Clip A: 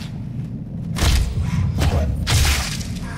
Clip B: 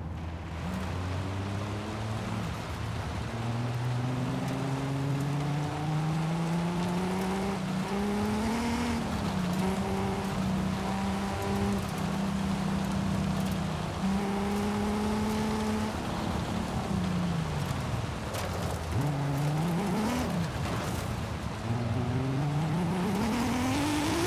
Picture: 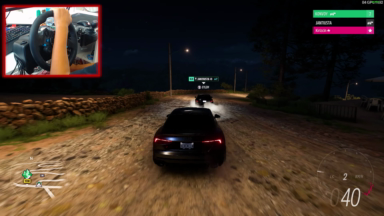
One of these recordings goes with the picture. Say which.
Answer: B